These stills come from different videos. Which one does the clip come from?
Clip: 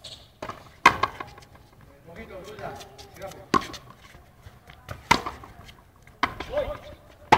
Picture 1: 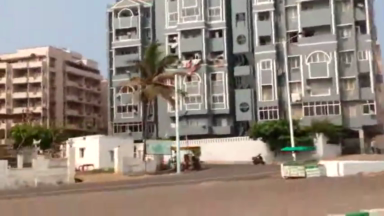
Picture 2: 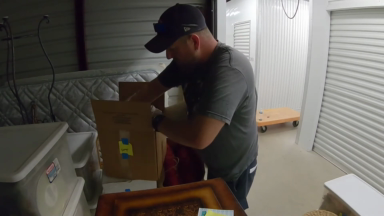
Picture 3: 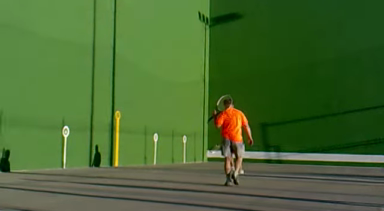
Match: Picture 3